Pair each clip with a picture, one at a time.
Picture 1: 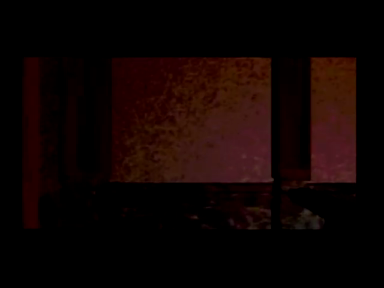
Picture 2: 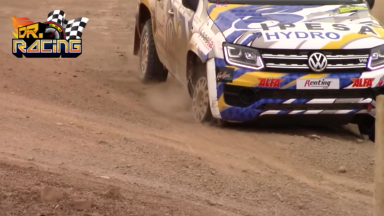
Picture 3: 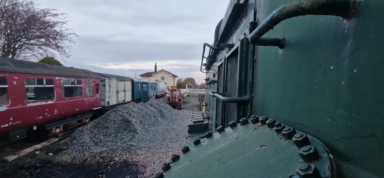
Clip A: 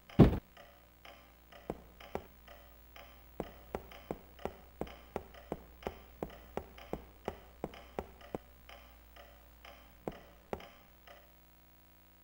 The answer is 1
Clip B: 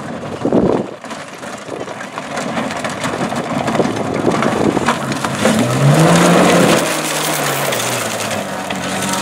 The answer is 2